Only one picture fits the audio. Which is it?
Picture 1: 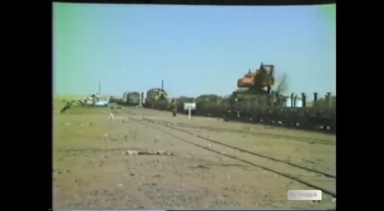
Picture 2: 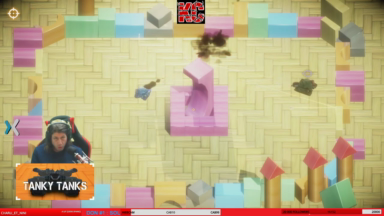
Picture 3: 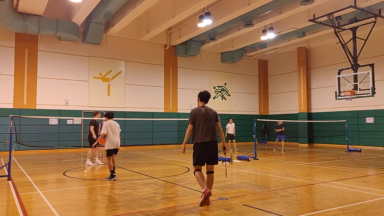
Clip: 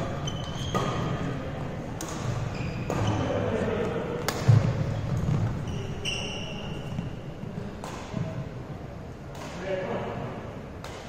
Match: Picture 3